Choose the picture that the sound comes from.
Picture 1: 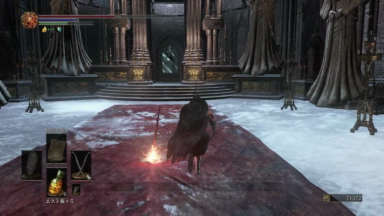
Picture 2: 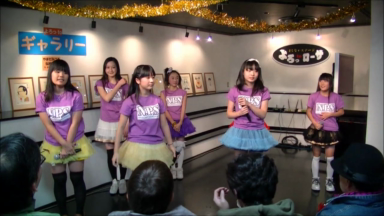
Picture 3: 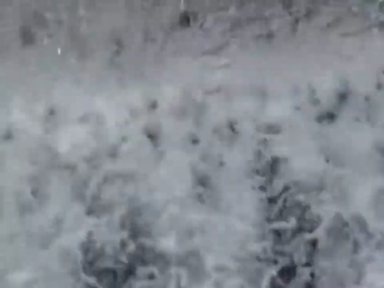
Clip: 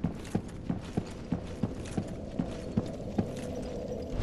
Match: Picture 1